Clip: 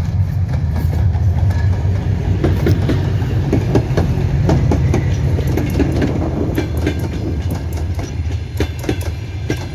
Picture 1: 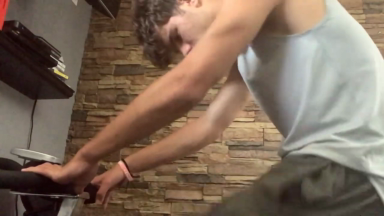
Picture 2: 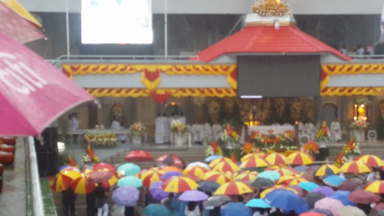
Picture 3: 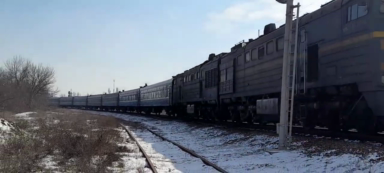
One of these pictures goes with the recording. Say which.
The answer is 3